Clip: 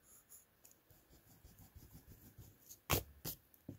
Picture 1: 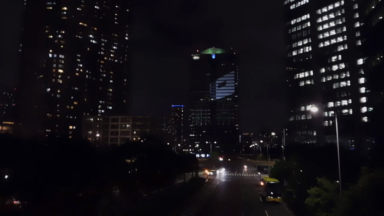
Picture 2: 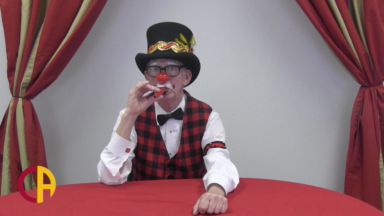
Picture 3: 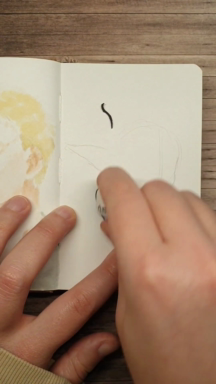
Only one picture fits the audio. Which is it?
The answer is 3